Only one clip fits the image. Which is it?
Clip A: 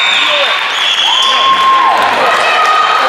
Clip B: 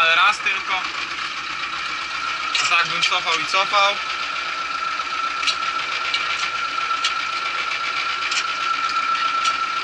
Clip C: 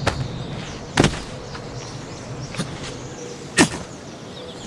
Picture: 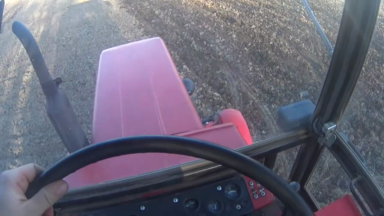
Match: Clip B